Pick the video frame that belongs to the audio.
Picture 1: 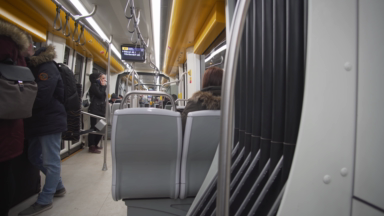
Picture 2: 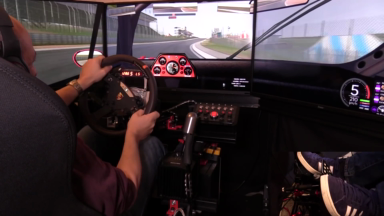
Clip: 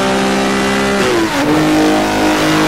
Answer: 2